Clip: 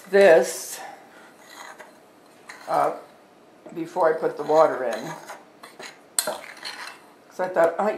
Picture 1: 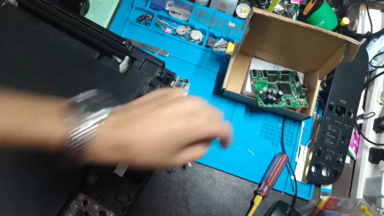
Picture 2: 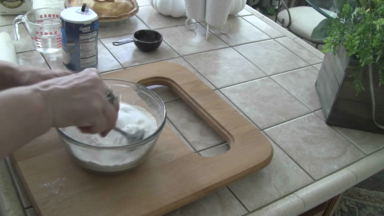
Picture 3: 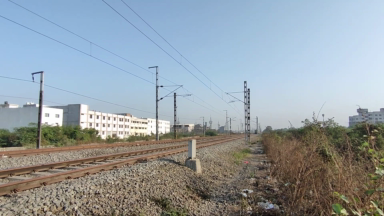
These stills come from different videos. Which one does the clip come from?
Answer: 2